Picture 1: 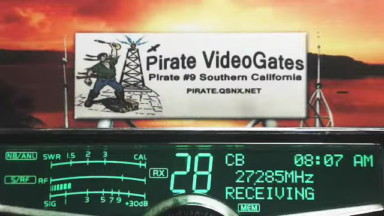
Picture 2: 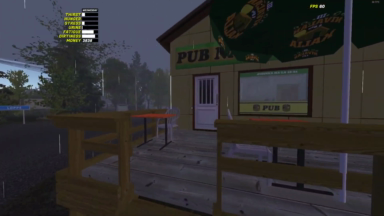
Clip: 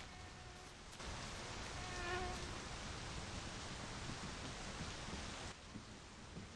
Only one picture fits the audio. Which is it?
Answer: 2